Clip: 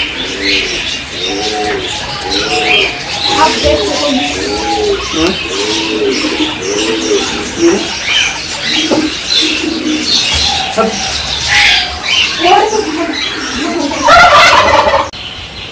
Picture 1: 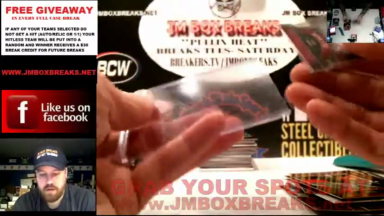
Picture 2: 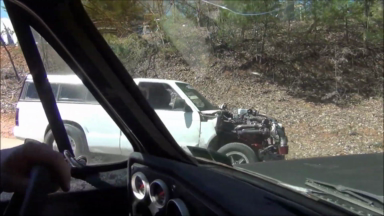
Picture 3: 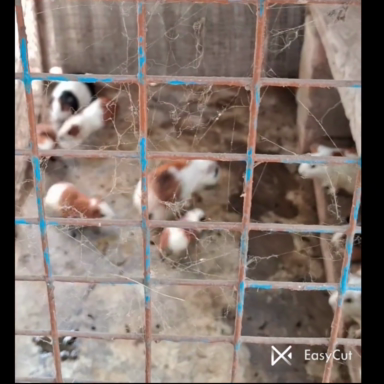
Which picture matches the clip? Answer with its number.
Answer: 3